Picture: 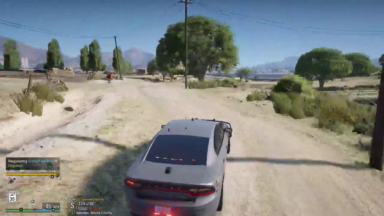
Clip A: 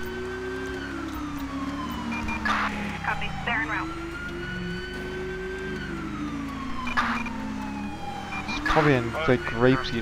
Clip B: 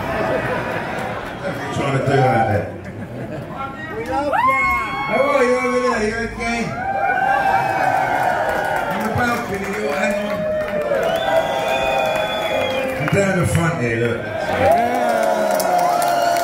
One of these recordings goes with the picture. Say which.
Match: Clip A